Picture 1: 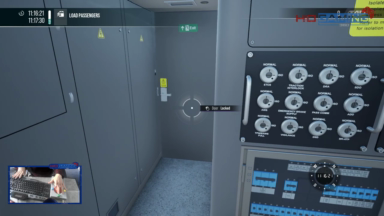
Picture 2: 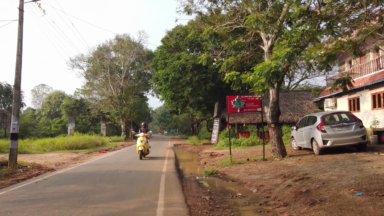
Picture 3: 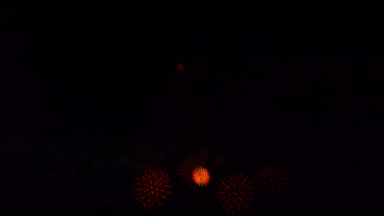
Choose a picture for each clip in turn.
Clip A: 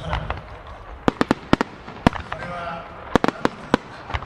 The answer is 3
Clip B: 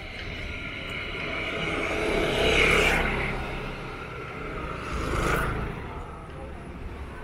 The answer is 2